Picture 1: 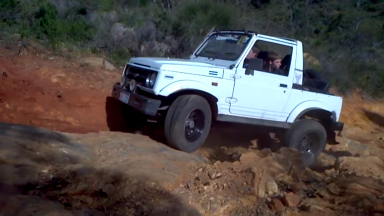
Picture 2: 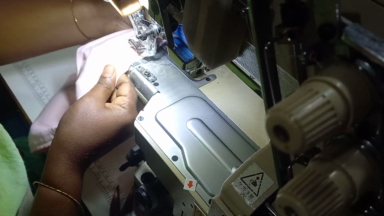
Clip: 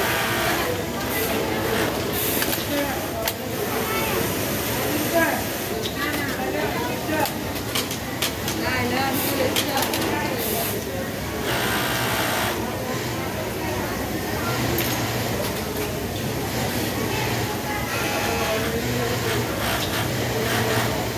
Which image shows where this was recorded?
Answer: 2